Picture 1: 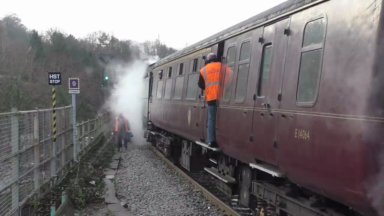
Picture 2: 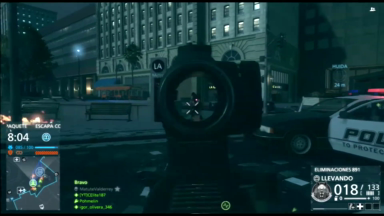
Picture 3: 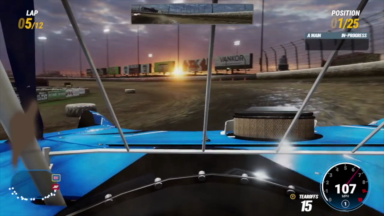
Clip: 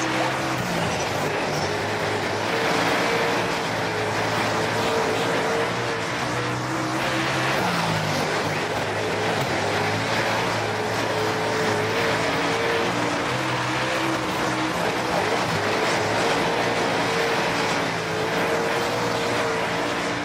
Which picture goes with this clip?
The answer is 3